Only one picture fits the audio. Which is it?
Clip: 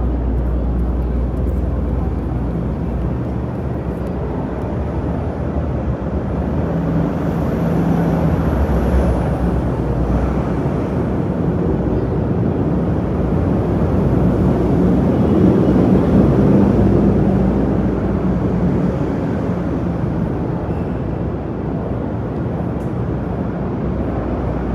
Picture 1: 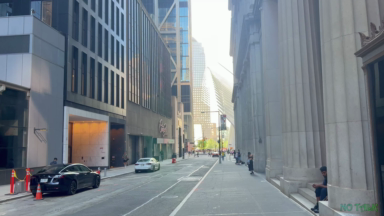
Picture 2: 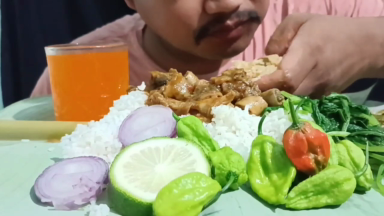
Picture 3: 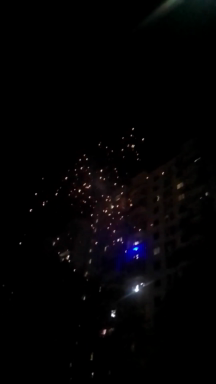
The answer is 1